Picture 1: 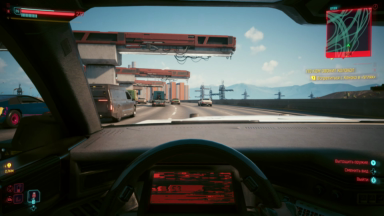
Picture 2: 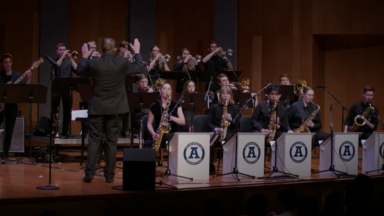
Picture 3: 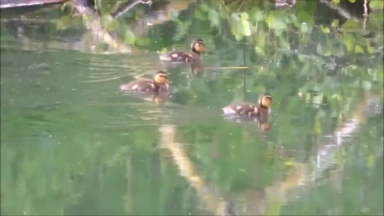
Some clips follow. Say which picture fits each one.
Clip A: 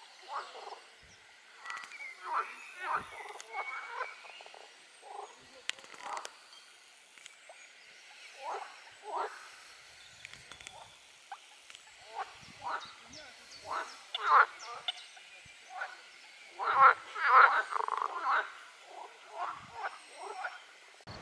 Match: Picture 3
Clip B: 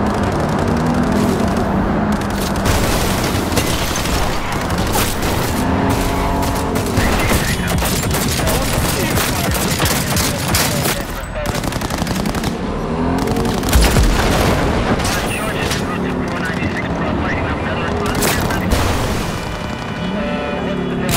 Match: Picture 1